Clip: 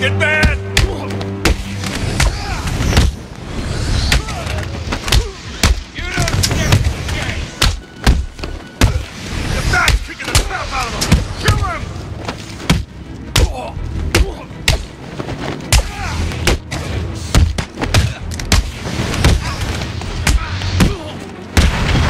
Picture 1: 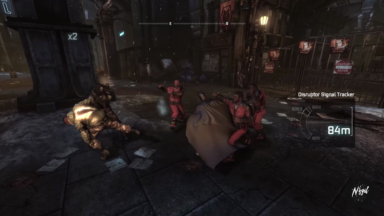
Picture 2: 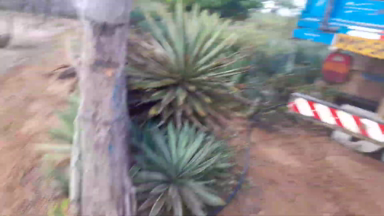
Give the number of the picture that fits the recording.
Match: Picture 1